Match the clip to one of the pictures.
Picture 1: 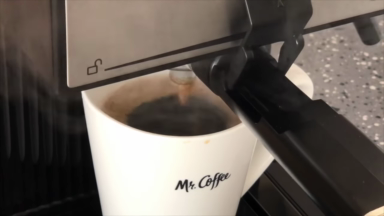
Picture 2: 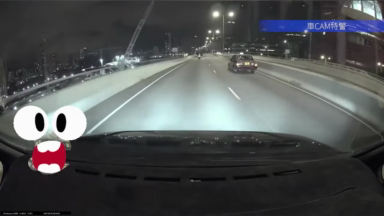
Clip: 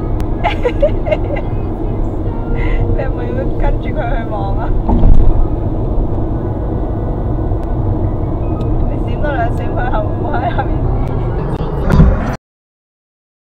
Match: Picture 2